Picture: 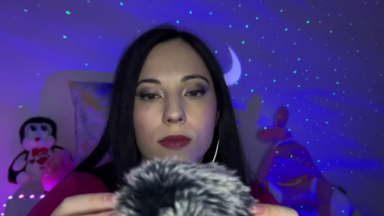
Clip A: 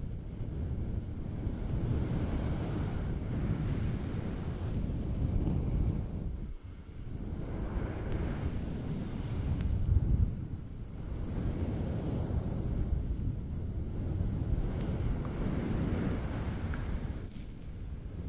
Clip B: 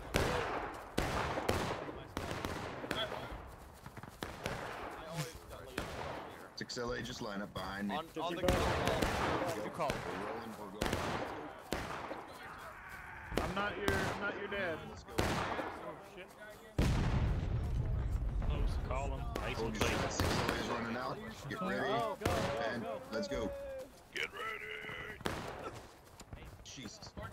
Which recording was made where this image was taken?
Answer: A